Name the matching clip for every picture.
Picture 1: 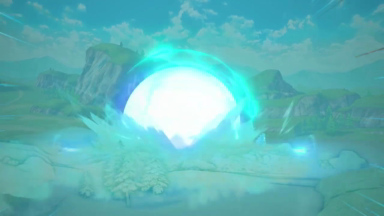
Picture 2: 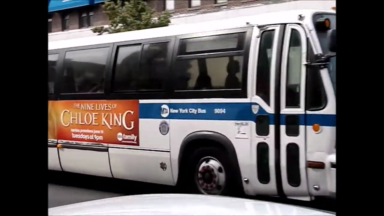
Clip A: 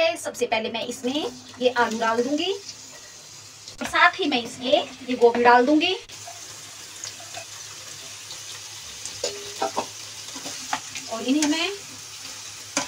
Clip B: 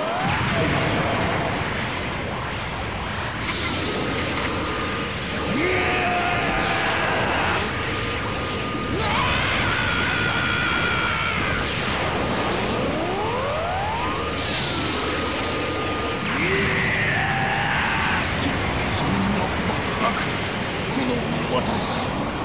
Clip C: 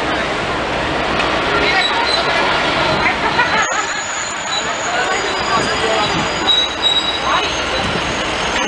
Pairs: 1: B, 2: C